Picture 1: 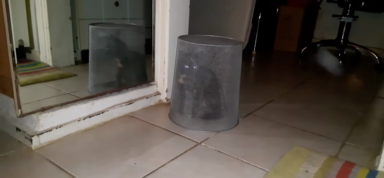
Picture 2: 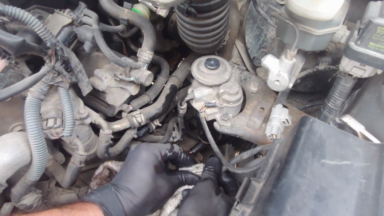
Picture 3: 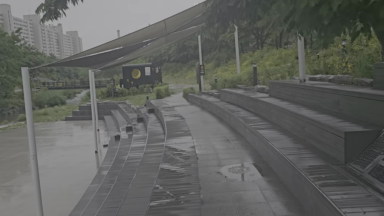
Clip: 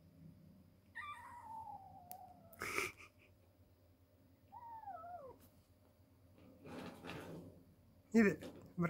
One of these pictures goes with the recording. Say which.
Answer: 1